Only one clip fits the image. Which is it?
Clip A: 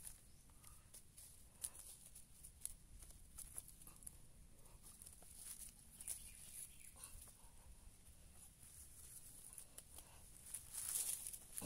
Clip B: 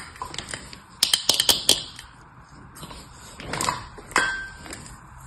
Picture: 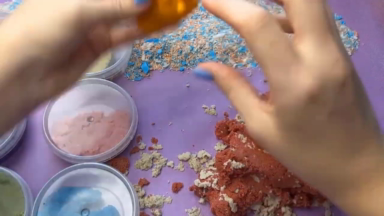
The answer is B